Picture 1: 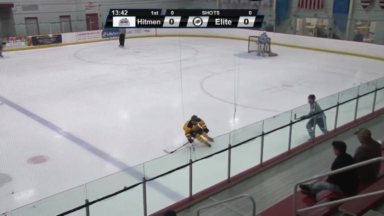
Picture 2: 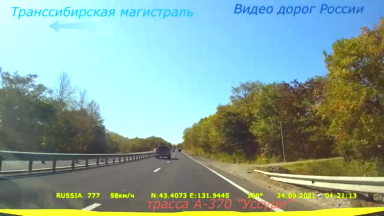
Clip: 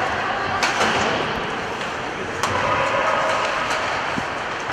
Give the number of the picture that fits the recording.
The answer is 1